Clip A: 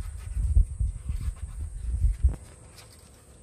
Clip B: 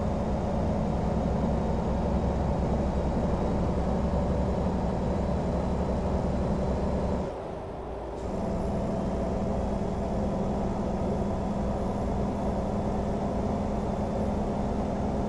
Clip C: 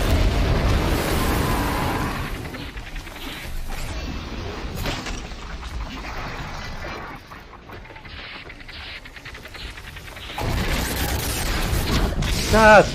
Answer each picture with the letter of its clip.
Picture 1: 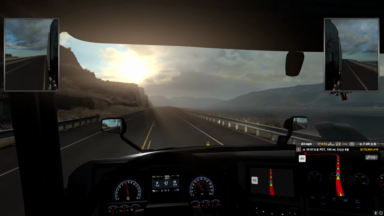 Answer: B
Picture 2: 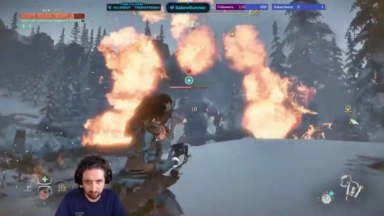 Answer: C